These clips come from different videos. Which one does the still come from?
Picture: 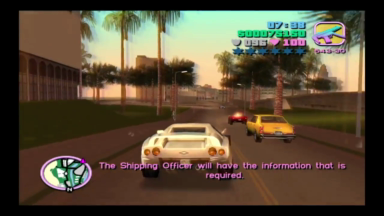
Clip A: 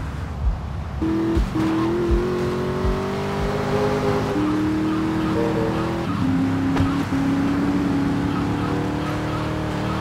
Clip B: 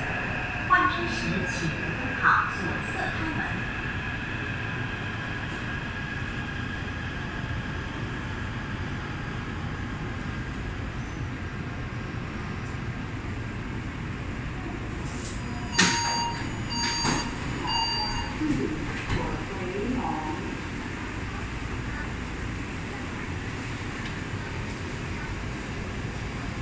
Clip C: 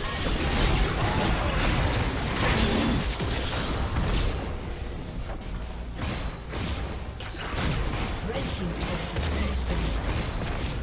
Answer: A